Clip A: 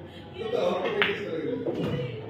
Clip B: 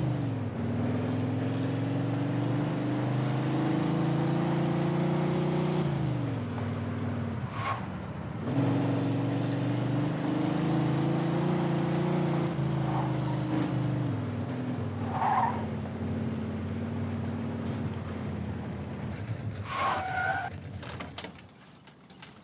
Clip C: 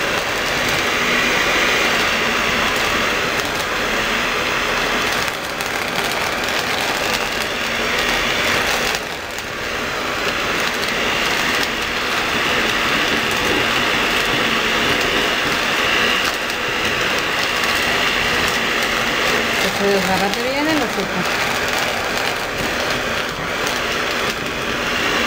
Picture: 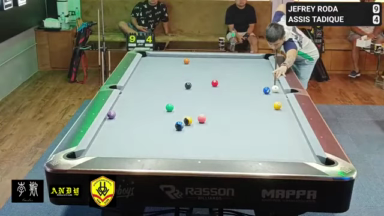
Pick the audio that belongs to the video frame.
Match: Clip A